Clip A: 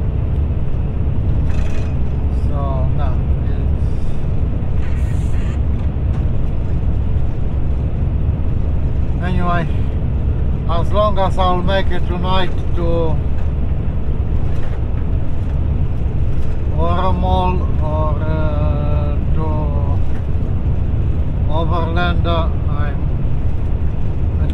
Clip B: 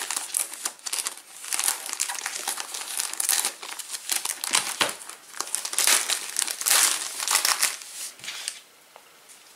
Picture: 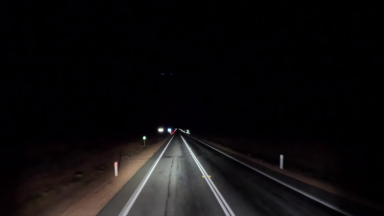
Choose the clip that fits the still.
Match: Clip A